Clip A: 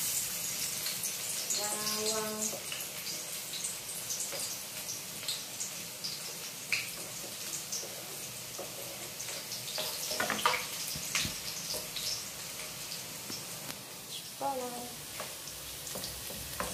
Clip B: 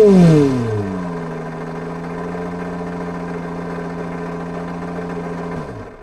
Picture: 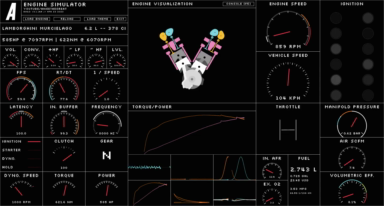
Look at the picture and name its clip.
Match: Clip B